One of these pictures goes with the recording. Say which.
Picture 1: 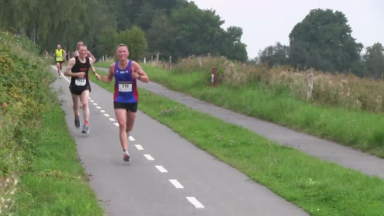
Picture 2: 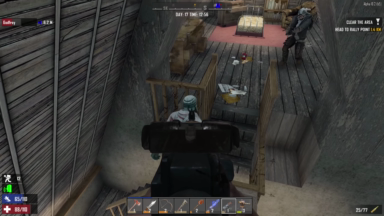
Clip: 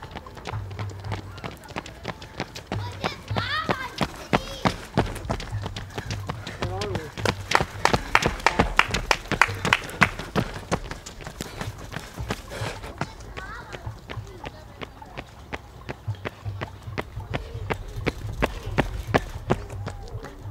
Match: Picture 1